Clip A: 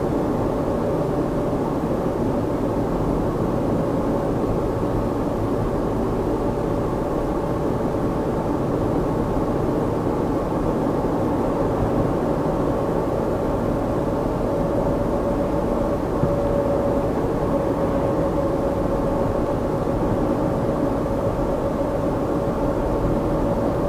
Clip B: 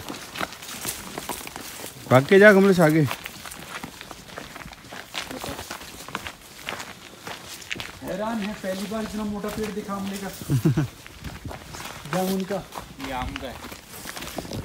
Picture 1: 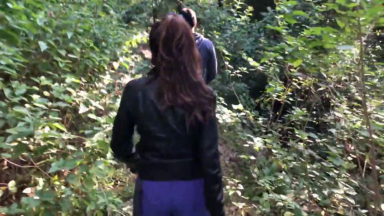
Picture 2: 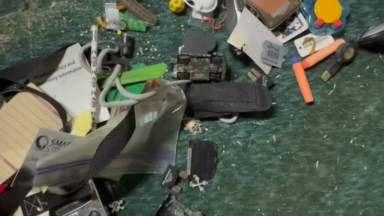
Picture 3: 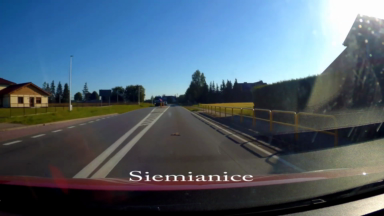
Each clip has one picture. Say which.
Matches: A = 3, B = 1